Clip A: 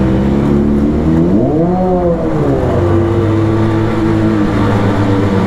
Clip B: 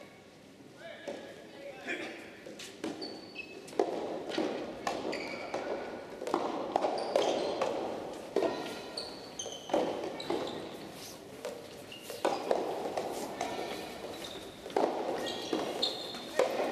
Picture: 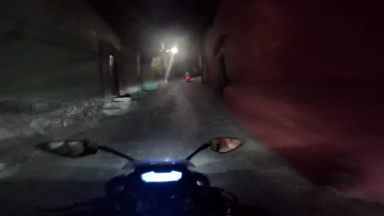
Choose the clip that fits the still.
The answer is A